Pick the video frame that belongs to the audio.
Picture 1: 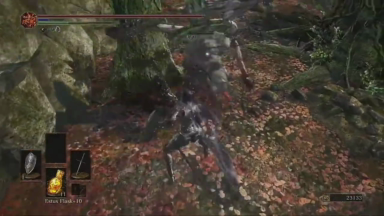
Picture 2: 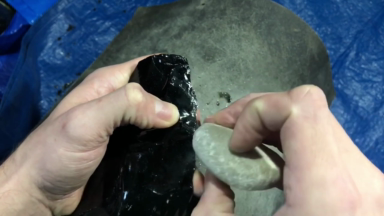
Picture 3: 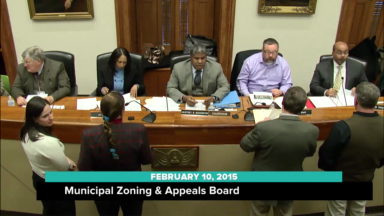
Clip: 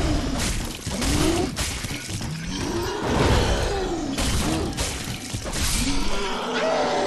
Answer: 1